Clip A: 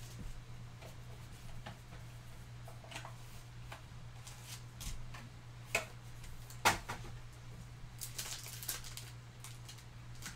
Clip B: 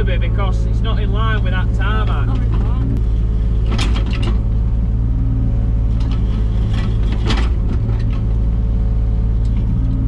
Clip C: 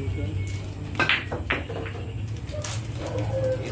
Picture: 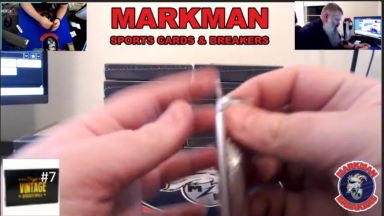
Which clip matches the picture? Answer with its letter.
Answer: A